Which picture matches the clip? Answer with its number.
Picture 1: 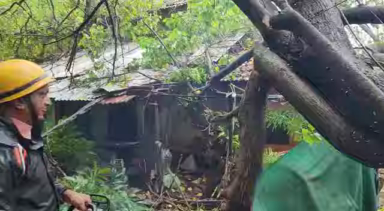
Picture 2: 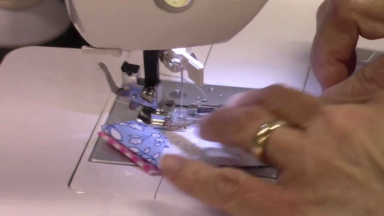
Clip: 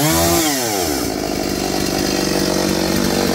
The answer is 1